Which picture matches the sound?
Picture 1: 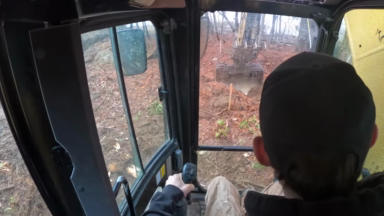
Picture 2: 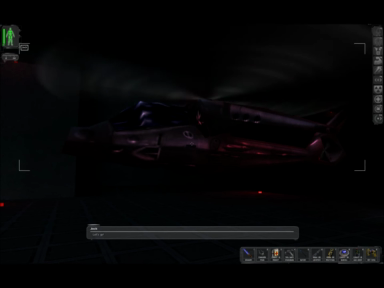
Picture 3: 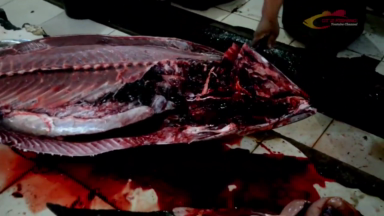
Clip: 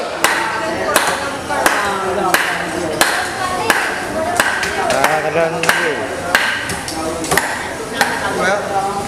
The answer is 3